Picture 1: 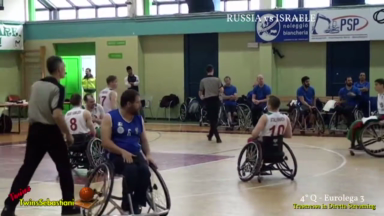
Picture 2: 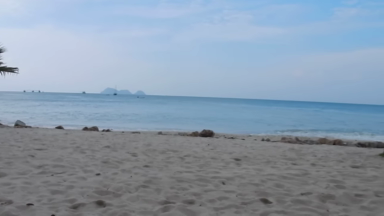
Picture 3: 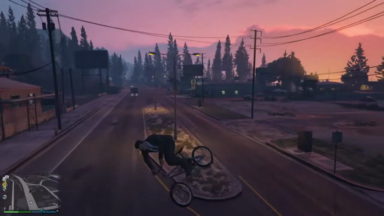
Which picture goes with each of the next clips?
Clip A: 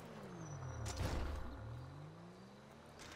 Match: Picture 3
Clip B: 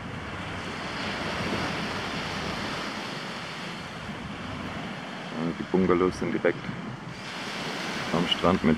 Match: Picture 2